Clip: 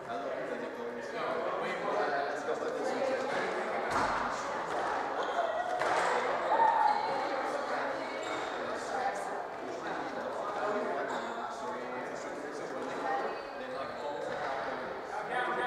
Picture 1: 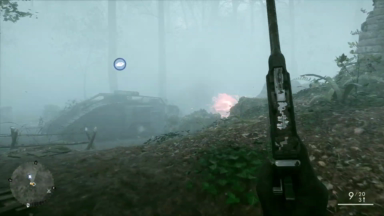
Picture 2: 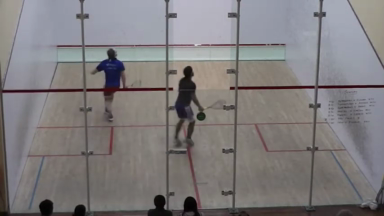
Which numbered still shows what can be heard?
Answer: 2